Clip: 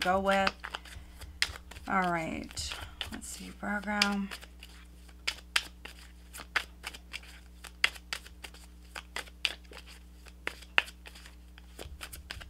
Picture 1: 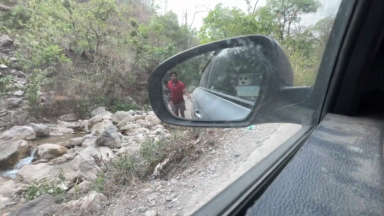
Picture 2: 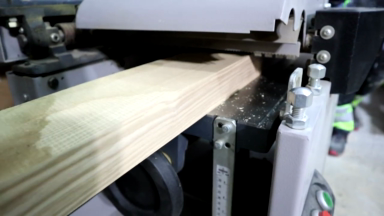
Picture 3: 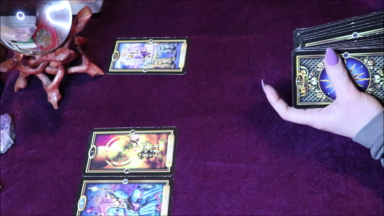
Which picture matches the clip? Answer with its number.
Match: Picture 3